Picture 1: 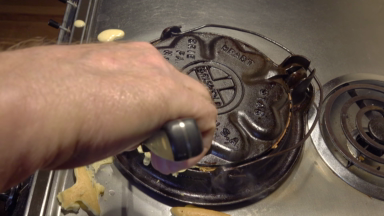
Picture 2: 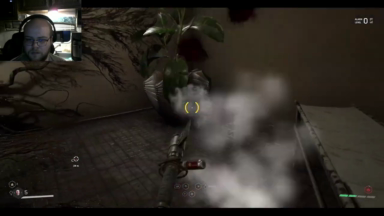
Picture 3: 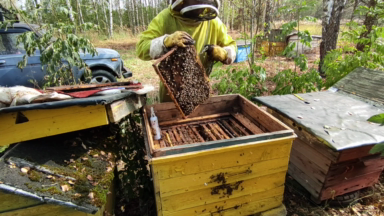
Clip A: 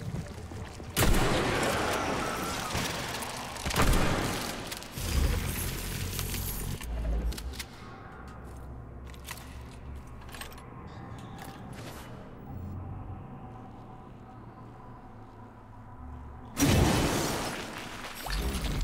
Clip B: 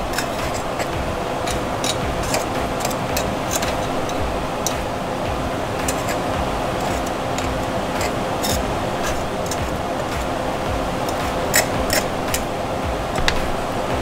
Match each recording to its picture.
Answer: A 2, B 1